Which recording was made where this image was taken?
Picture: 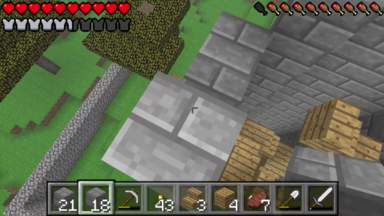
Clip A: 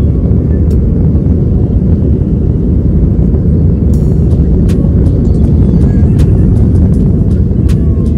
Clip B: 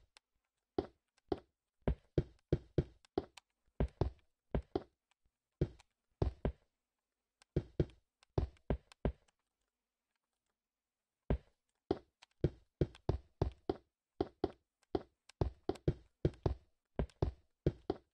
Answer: B